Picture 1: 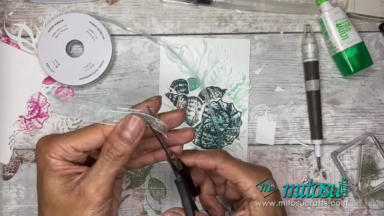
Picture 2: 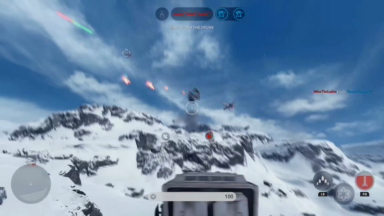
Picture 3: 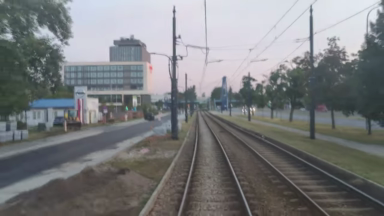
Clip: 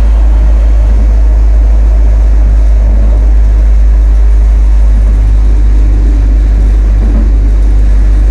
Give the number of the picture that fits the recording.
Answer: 3